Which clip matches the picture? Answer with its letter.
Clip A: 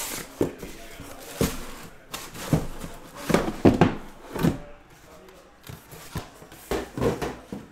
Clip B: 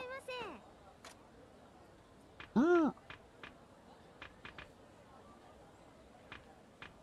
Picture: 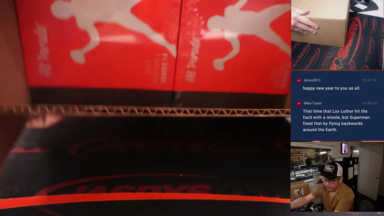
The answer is A